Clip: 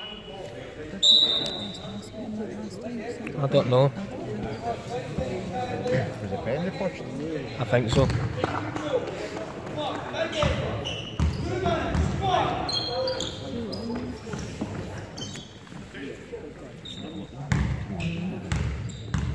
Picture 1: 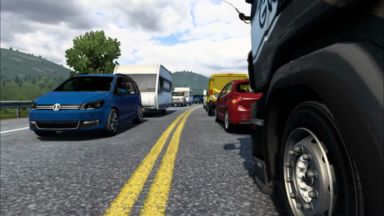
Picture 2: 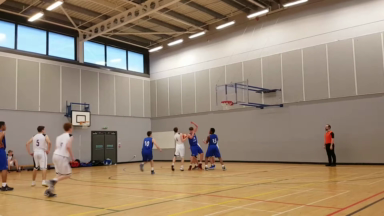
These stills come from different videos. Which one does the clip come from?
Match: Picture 2